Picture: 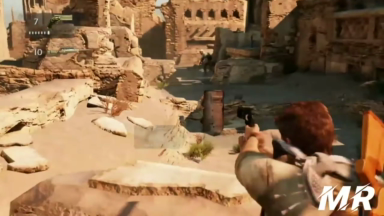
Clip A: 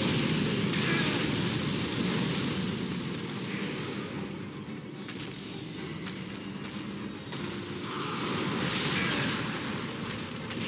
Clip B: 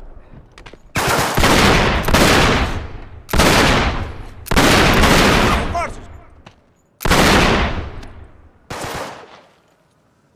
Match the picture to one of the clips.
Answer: B